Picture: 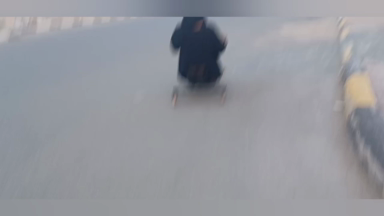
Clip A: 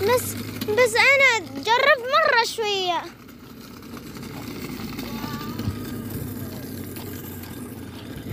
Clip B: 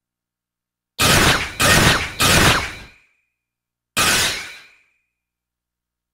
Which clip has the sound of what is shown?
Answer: A